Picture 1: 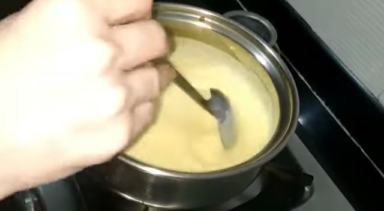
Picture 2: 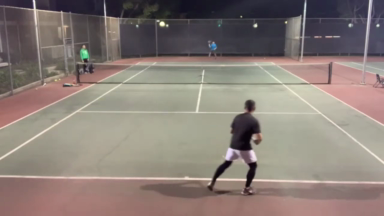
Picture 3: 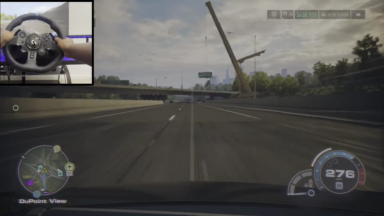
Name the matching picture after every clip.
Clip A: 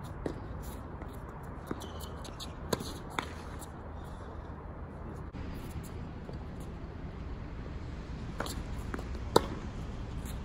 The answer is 2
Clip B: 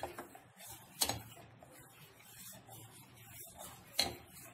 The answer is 1